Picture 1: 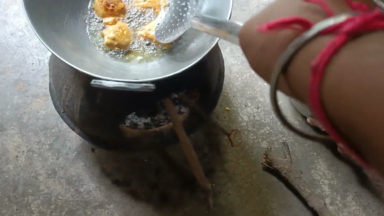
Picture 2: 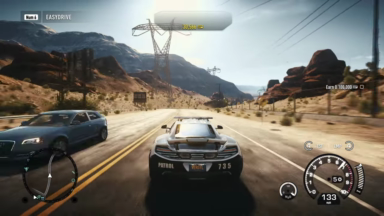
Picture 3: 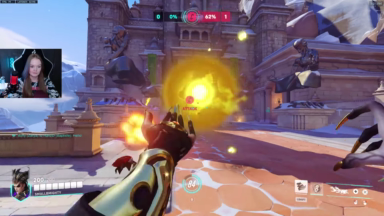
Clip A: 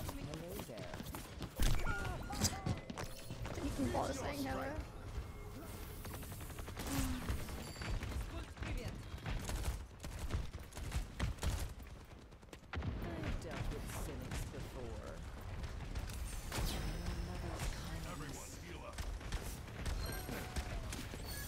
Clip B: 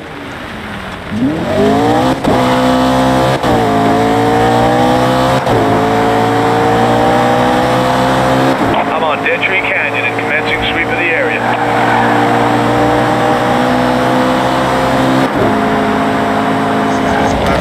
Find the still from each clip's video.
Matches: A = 3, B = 2